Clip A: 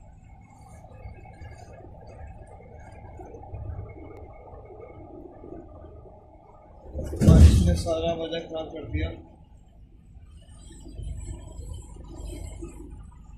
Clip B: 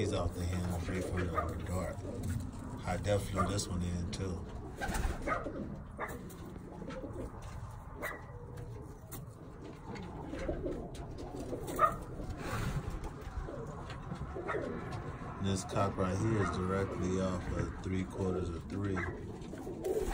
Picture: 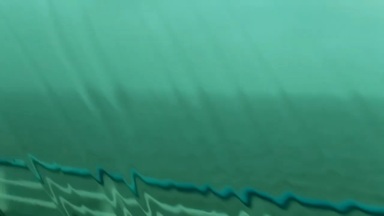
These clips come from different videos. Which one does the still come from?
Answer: A